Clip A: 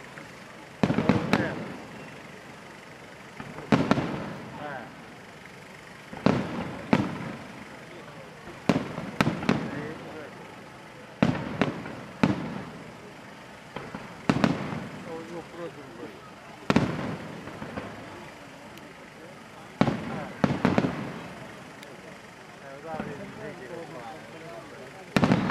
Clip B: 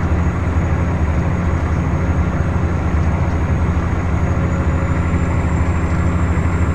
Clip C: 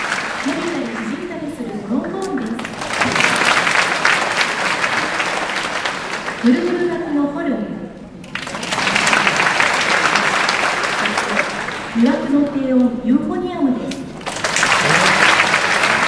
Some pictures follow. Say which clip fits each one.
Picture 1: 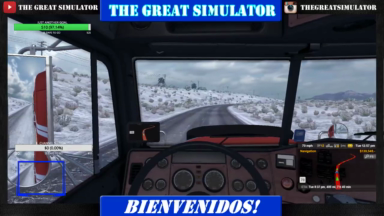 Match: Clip B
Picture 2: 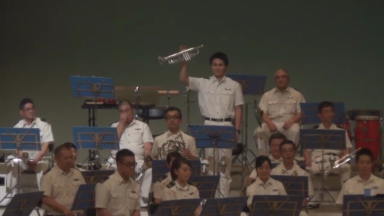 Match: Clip C